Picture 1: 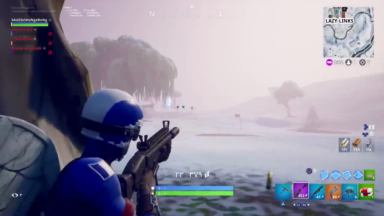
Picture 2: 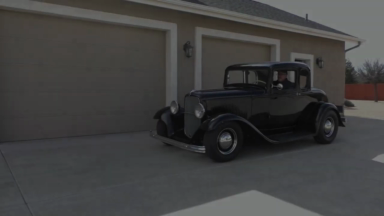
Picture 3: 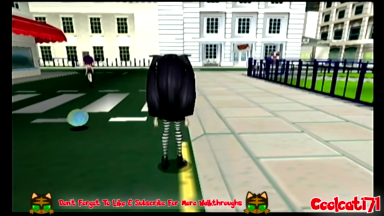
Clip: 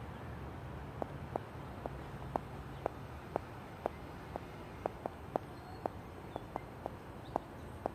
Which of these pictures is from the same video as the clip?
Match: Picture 3